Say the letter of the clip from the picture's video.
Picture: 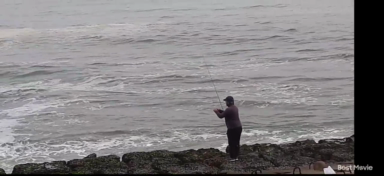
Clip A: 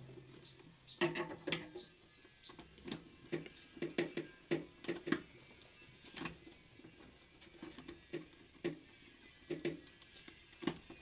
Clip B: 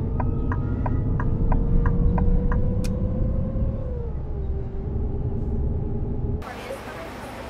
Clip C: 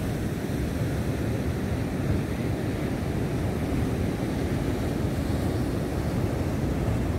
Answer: C